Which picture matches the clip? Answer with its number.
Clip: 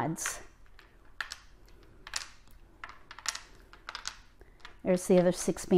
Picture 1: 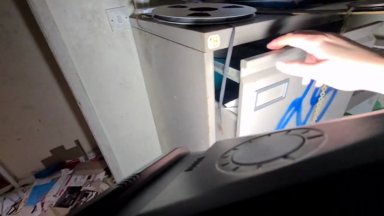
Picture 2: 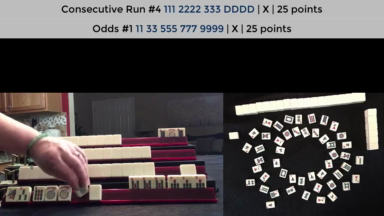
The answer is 2